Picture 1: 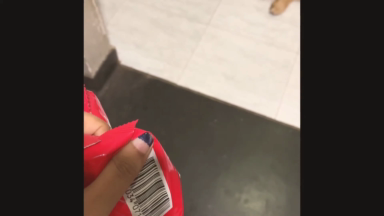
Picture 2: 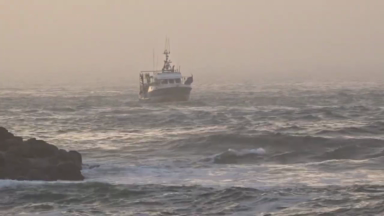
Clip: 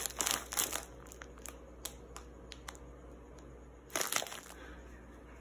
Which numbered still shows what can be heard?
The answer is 1